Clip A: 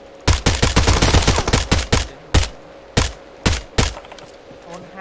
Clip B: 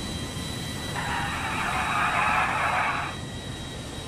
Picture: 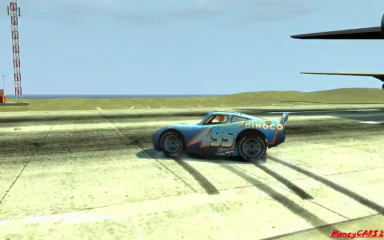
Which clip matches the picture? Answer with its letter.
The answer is B